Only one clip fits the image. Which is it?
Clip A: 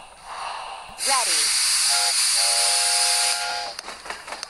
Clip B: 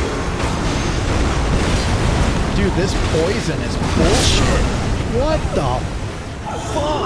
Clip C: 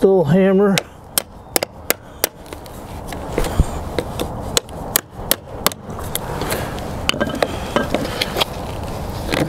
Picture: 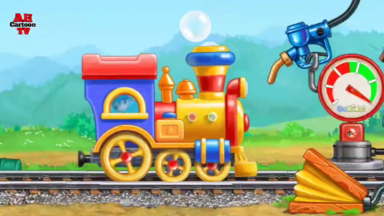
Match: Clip A